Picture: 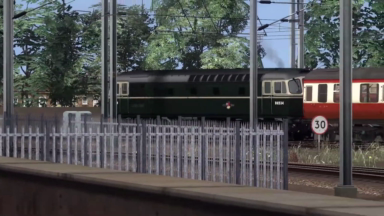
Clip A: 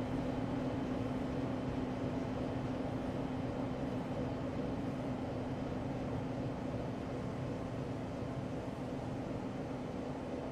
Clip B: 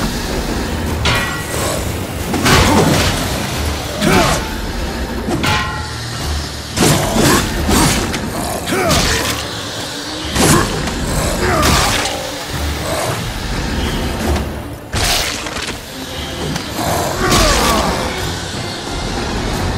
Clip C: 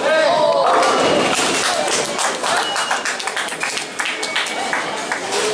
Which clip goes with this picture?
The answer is A